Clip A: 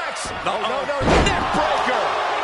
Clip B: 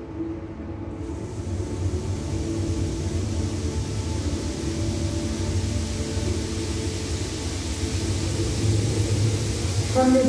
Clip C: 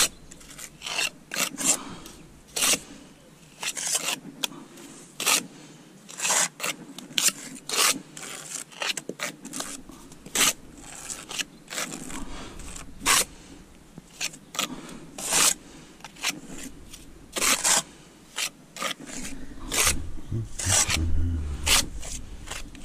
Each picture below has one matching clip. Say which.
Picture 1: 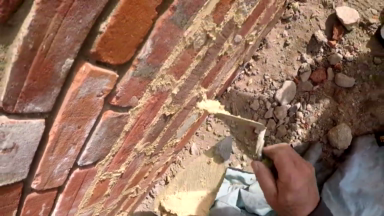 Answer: C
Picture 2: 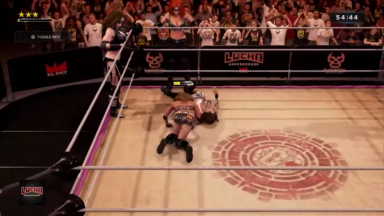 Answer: A